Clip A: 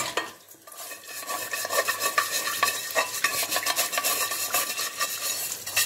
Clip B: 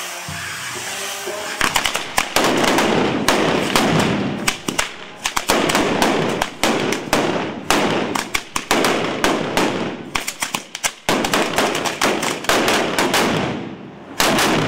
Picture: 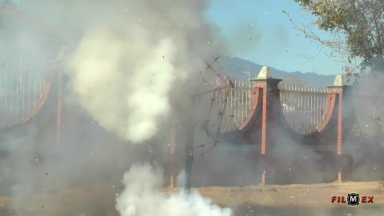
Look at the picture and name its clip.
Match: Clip B